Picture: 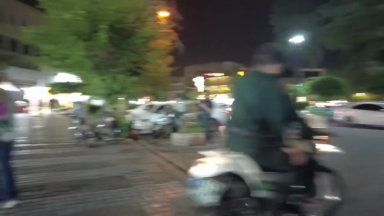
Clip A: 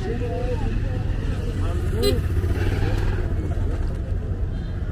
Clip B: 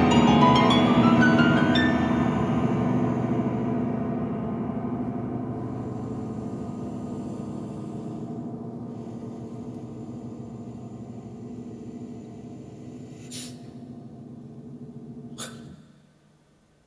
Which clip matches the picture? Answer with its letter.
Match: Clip A